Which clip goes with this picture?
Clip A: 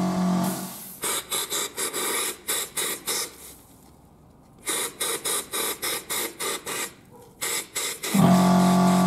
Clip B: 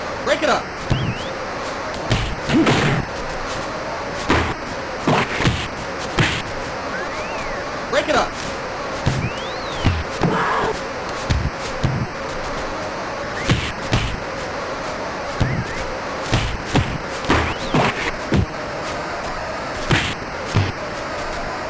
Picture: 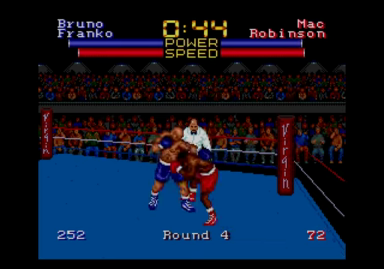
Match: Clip B